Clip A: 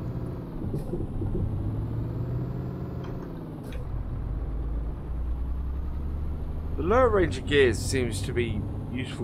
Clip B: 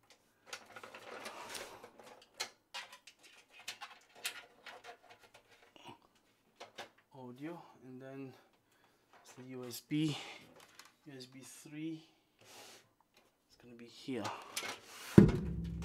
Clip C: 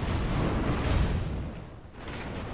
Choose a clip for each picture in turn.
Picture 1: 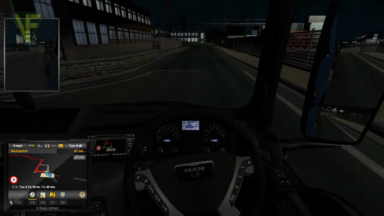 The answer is A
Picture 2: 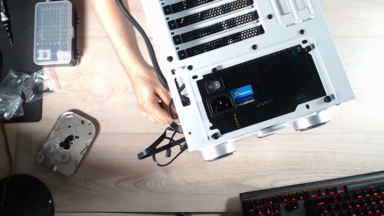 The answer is B